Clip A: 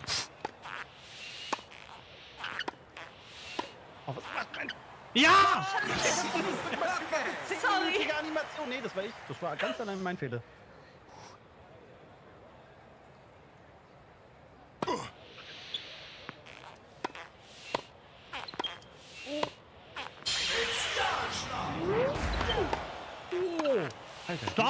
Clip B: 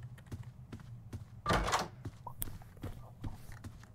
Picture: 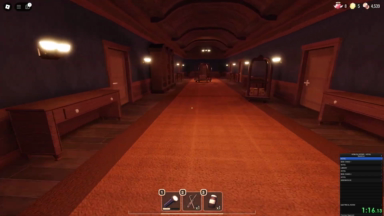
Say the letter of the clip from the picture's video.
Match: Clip B